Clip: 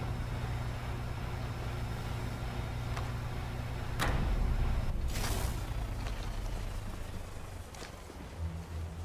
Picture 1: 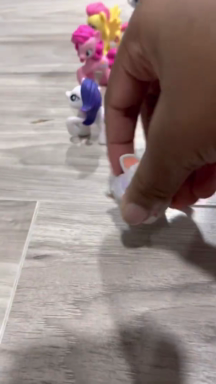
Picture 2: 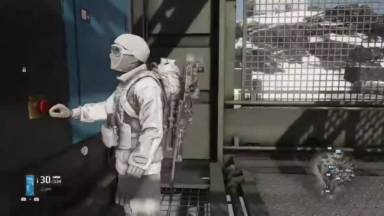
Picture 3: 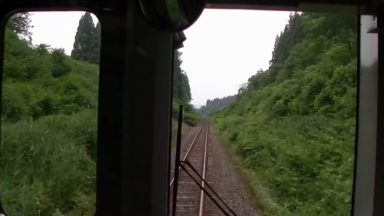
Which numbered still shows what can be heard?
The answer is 2